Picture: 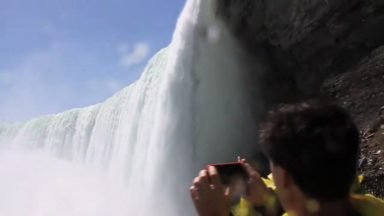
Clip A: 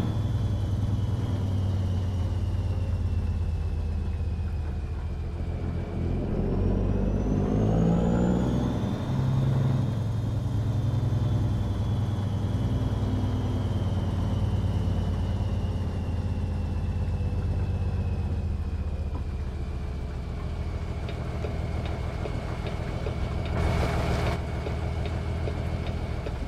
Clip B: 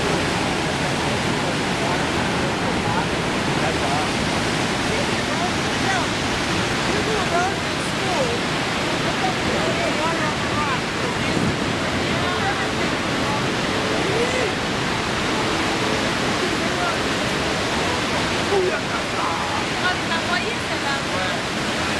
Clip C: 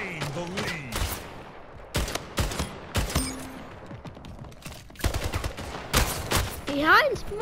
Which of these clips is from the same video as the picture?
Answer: B